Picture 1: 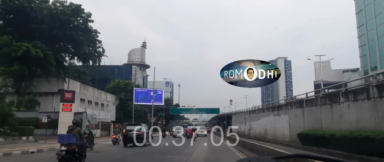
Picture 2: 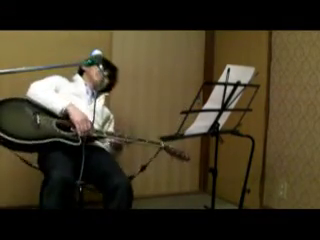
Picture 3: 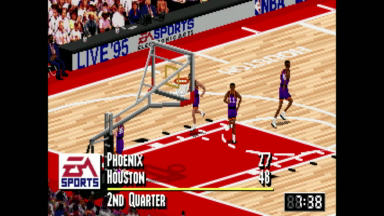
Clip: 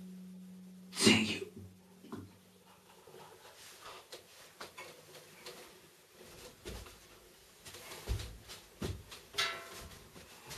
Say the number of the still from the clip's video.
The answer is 2